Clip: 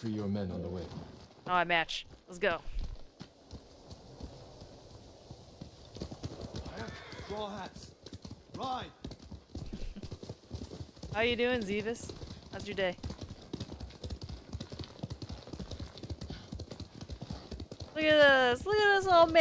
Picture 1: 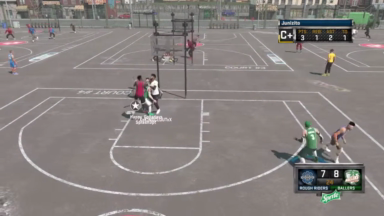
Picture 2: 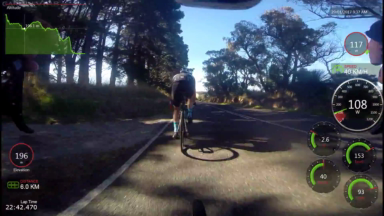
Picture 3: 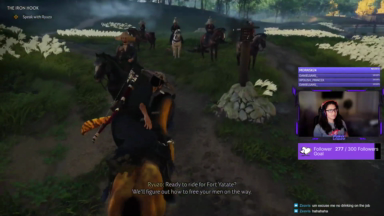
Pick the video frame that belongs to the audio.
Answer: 3